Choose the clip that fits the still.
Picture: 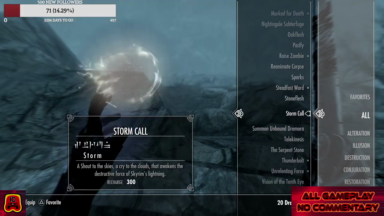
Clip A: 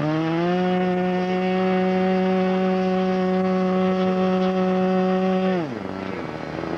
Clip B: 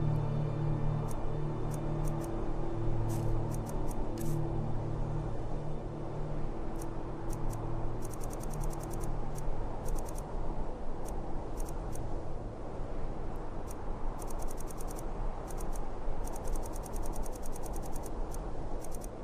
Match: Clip B